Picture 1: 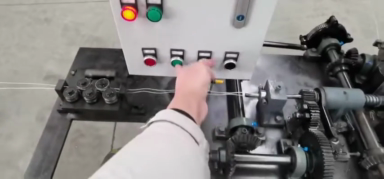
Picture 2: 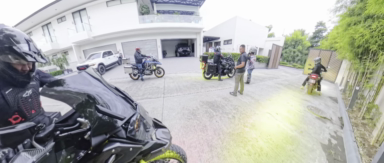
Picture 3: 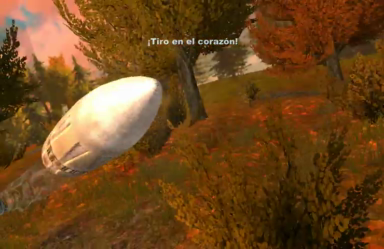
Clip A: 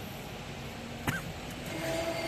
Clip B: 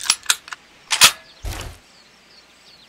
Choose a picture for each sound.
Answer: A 1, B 3